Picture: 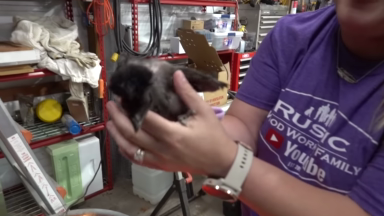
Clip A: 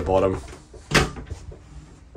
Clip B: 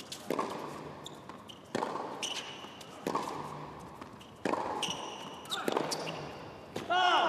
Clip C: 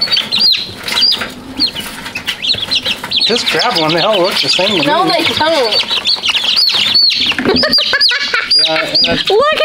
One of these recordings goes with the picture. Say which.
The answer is C